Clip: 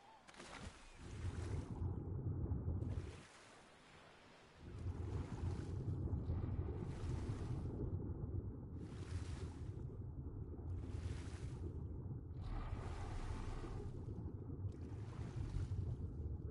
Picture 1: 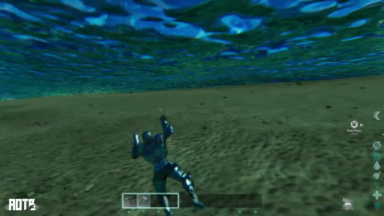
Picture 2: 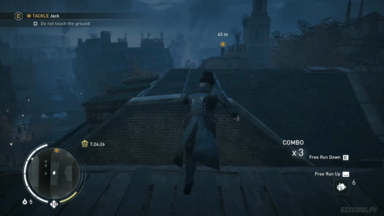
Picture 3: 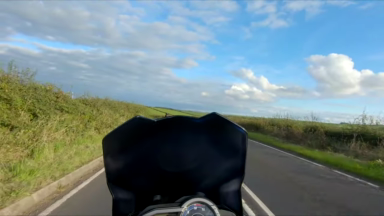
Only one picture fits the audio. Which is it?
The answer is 1